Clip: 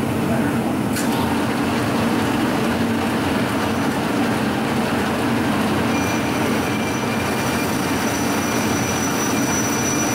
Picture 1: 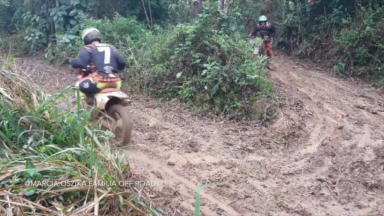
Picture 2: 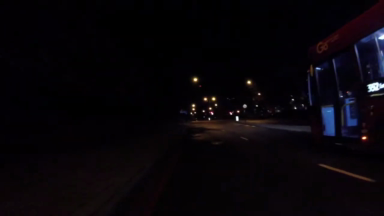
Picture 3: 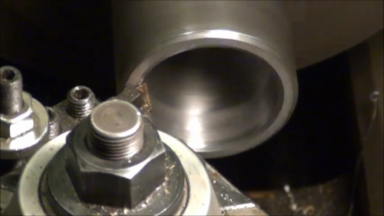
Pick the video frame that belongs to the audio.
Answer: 3